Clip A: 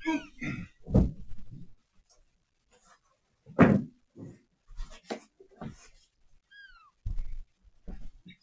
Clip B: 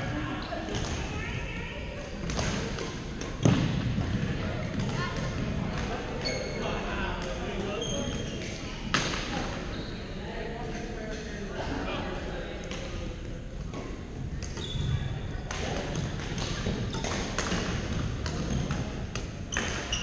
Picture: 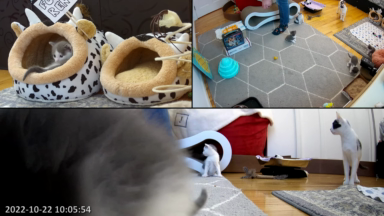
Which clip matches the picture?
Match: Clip A